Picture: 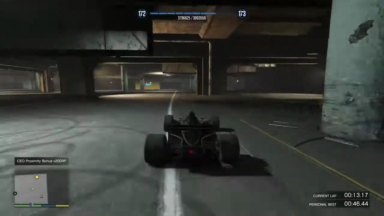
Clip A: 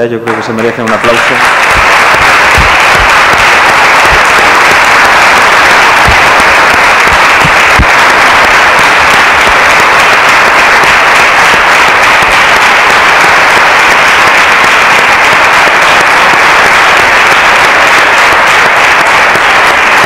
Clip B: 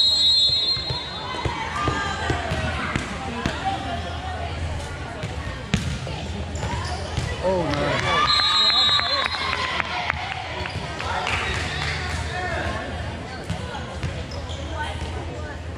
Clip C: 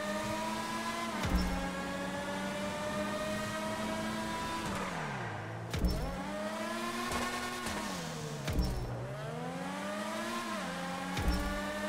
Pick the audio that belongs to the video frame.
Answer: C